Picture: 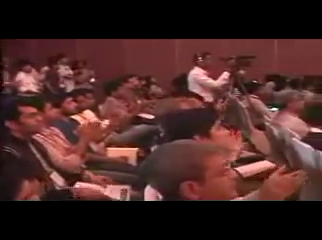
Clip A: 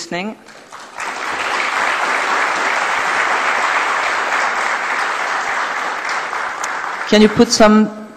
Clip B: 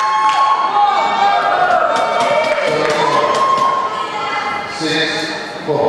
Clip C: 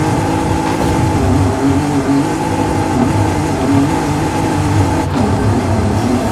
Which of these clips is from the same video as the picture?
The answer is A